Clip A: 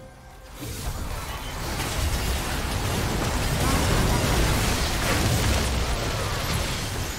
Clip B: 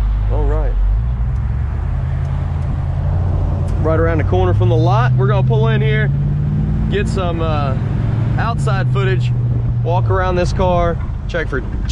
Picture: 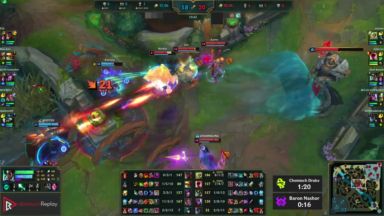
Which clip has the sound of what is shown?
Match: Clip A